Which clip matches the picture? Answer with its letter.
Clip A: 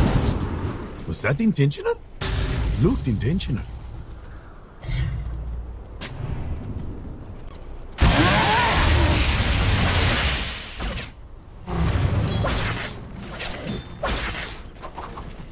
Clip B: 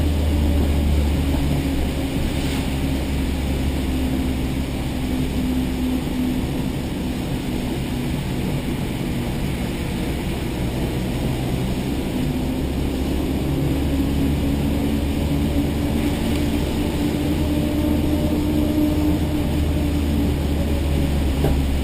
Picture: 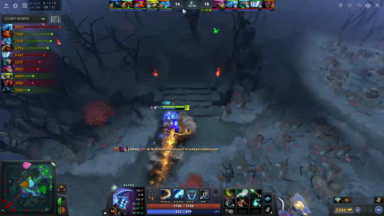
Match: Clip A